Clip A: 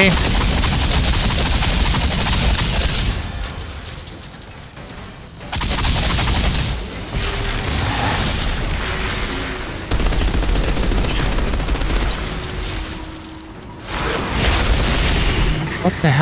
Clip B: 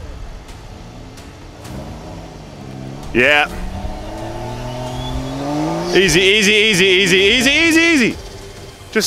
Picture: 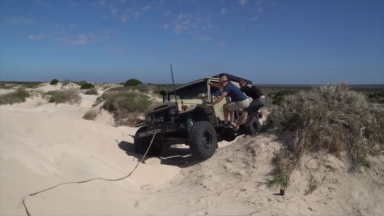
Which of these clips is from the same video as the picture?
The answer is B